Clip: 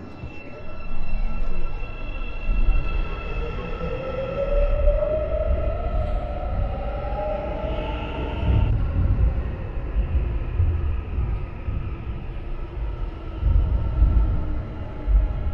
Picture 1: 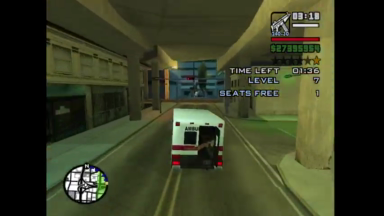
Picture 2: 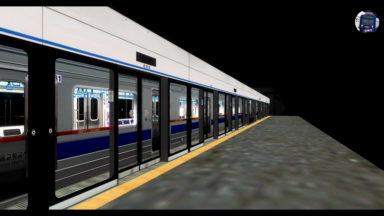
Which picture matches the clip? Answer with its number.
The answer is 2